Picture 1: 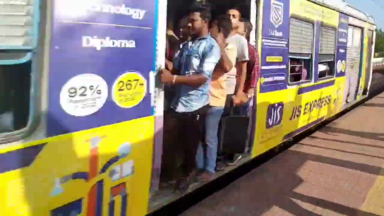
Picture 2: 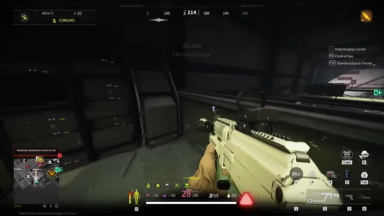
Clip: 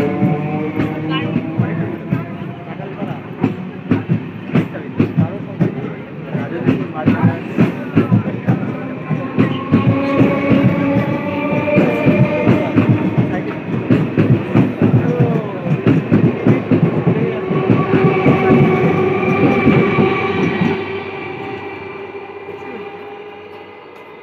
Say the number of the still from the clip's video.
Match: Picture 1